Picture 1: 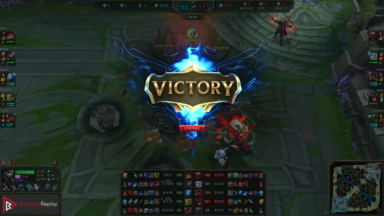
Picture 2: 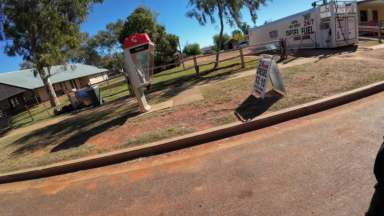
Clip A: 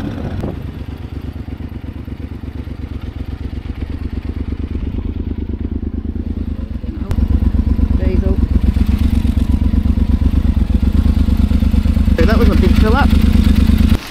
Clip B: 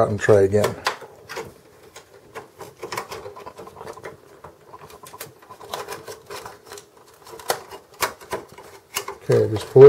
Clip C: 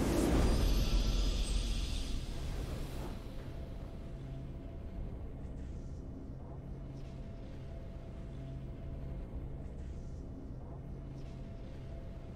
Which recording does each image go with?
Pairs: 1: C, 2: A